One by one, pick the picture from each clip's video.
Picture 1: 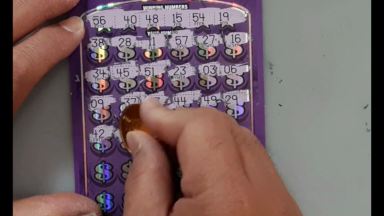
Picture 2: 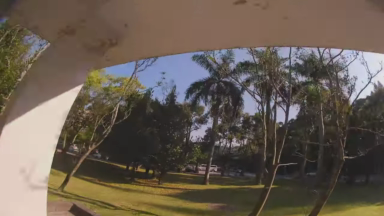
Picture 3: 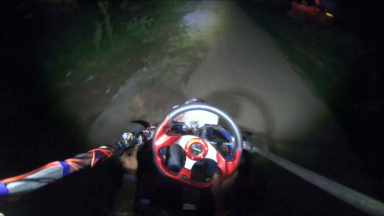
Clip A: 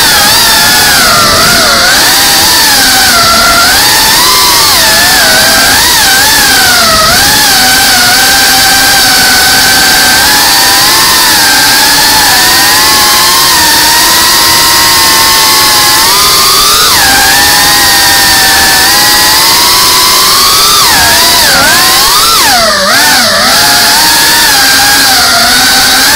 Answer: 2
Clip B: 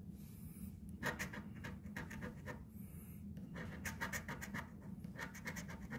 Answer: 1